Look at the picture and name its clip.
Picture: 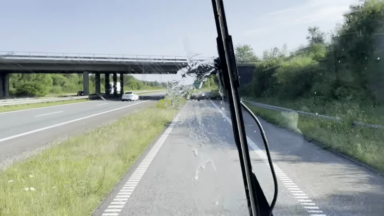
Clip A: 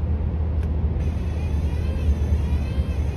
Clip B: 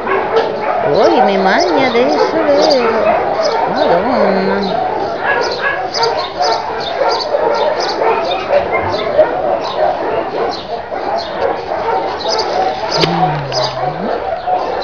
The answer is A